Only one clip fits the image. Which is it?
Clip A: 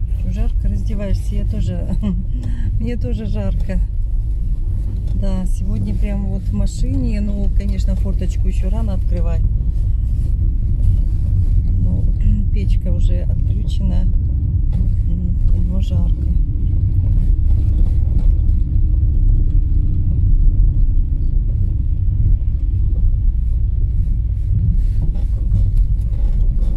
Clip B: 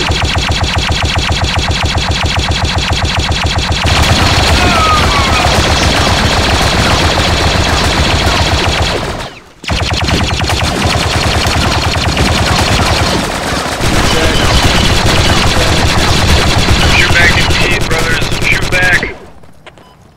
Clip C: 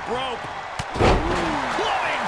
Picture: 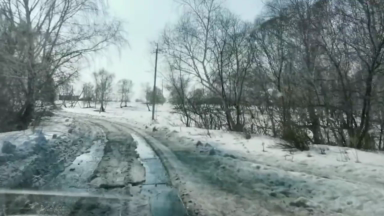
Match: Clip A